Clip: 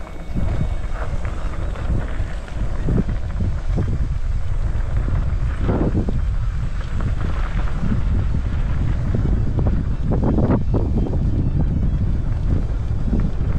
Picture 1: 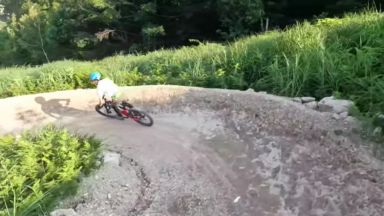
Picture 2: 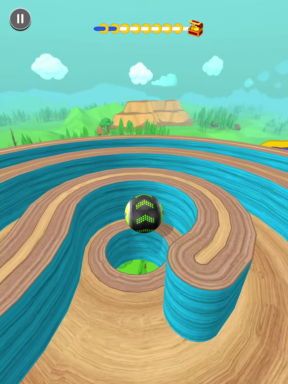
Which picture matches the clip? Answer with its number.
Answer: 1